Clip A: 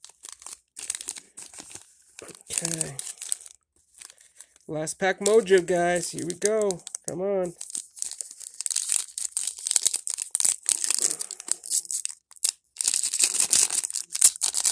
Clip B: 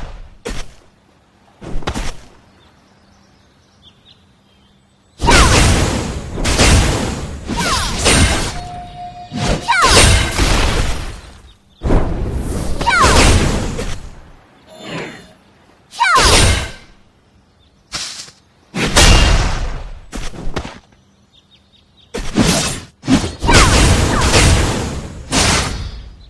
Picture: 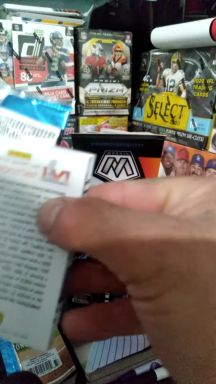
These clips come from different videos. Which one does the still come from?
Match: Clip A